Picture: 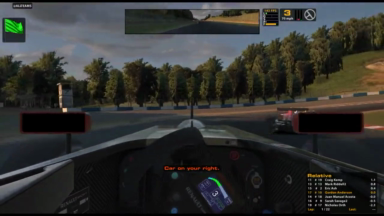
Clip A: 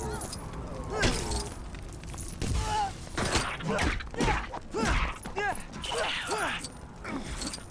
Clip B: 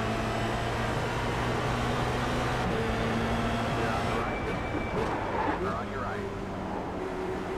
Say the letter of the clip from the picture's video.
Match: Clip B